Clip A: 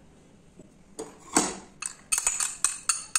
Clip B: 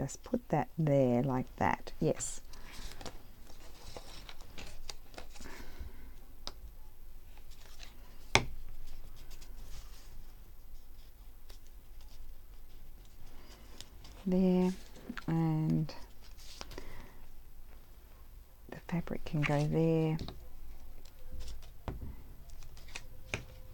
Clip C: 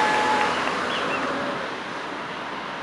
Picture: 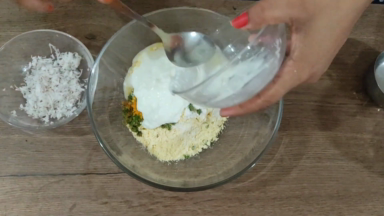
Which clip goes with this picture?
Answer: A